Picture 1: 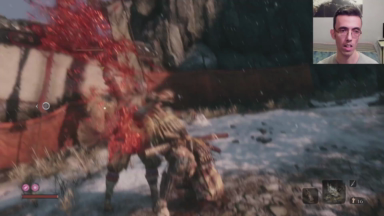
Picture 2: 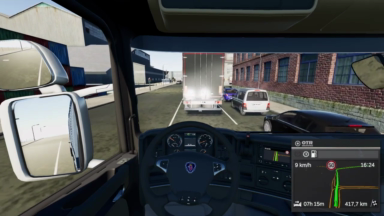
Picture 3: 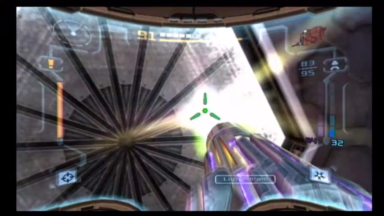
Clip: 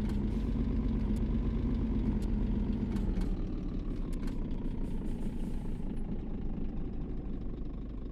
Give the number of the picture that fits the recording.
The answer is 2